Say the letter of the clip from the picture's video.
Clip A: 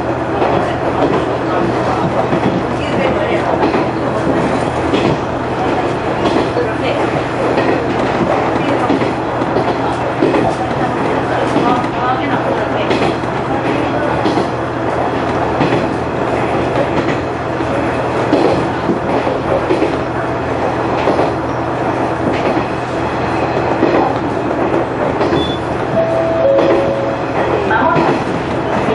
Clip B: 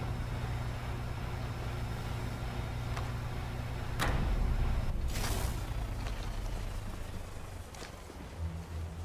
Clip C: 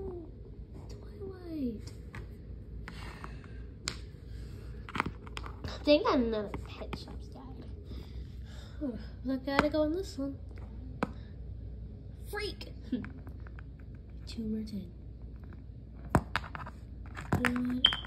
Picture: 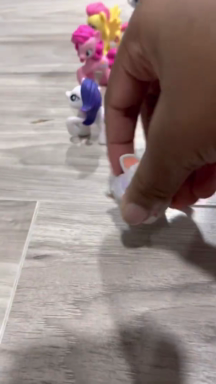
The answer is C